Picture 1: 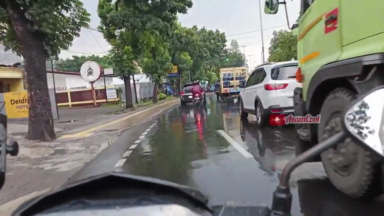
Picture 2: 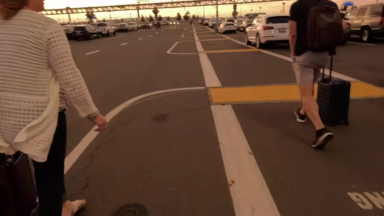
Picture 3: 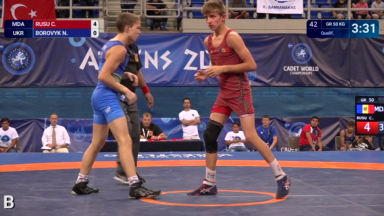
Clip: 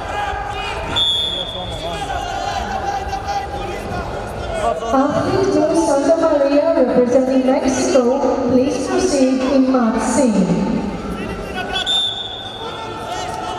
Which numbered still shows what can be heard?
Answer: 3